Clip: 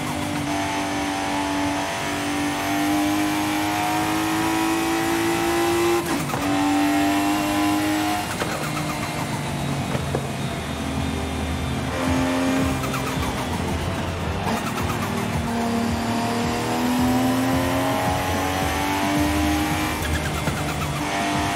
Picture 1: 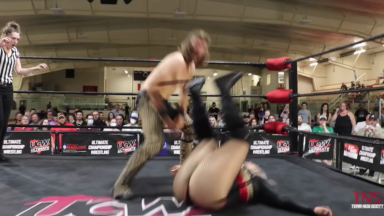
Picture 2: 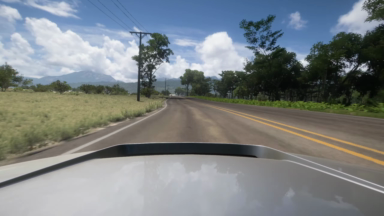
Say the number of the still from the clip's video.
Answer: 2